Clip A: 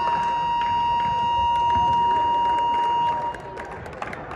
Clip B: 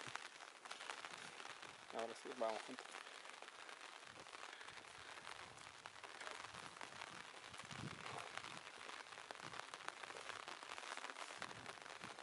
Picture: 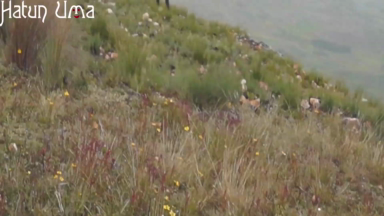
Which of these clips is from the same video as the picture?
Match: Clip B